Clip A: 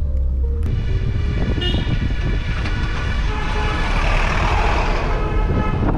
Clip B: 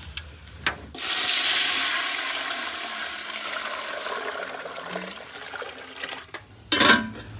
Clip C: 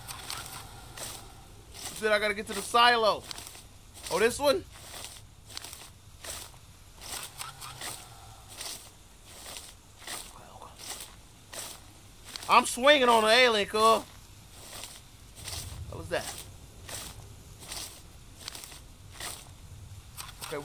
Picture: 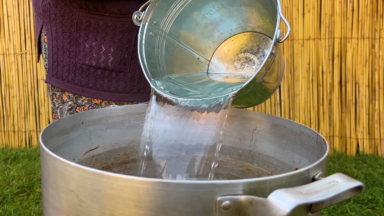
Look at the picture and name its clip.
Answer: B